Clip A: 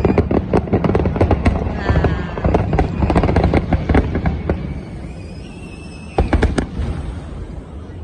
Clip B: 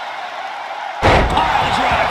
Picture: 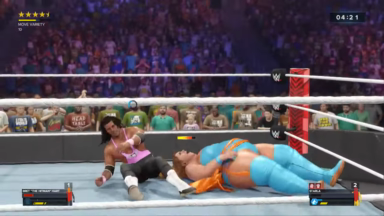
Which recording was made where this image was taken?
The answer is B